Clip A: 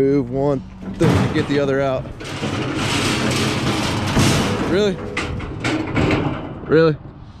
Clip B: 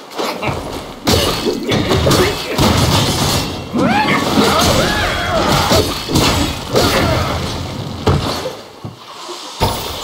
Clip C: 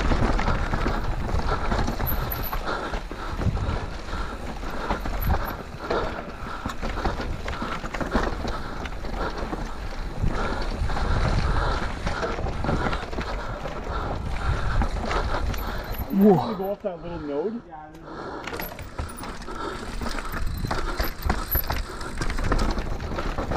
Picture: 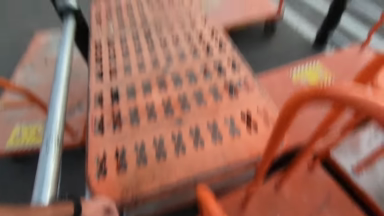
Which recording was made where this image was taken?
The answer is A